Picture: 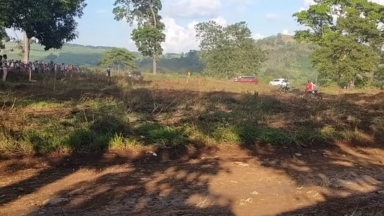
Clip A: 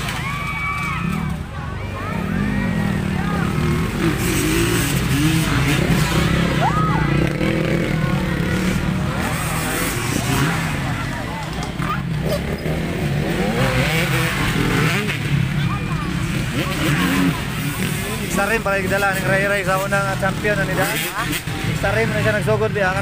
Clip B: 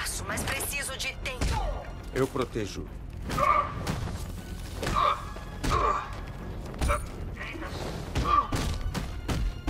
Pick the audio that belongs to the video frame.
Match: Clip A